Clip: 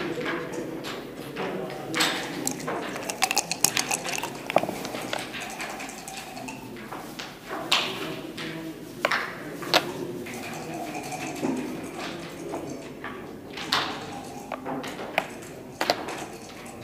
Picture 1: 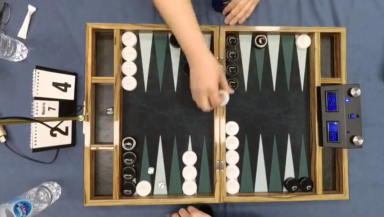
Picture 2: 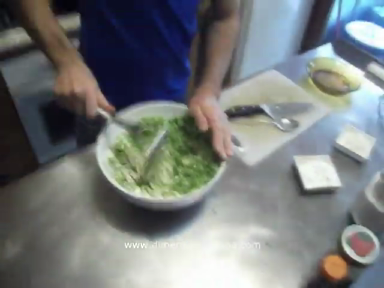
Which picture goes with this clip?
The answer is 1